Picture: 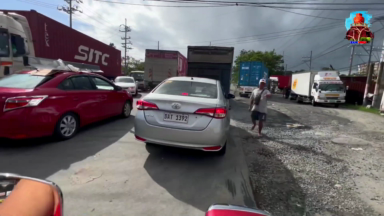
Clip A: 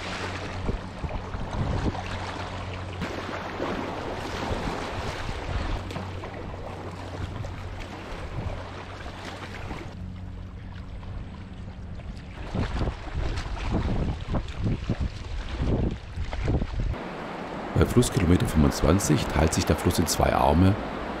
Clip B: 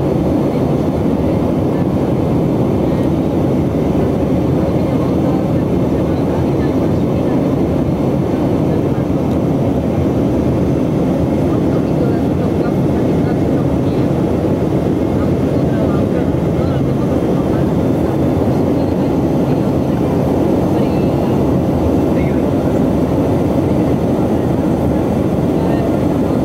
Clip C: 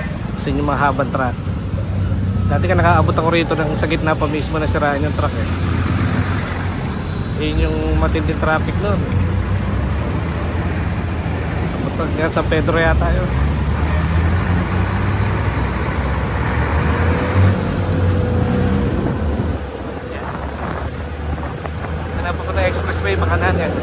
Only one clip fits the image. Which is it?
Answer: C